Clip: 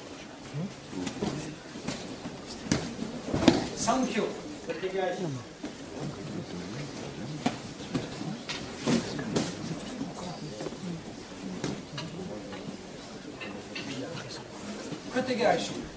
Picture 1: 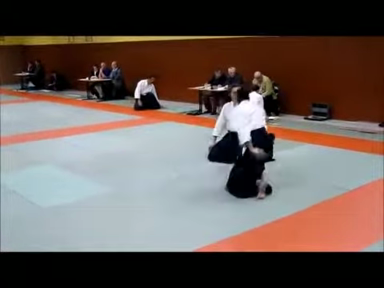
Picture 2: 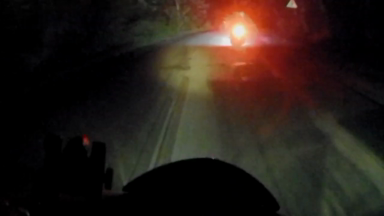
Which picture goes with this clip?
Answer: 1